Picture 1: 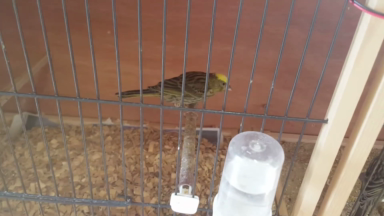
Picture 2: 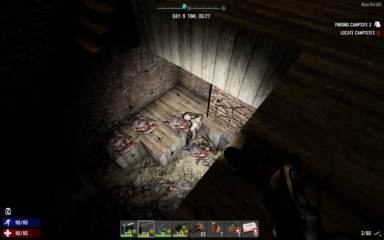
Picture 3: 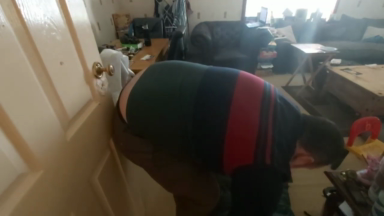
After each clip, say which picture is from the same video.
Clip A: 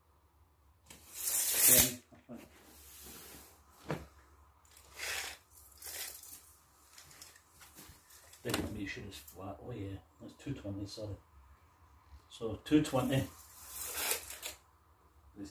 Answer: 3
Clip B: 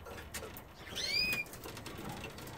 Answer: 1